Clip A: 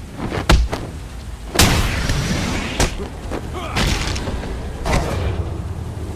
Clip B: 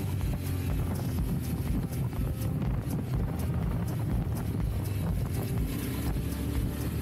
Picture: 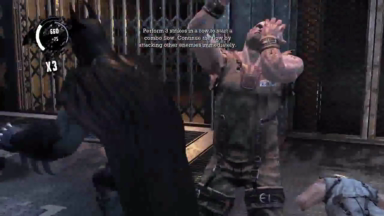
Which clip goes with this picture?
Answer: A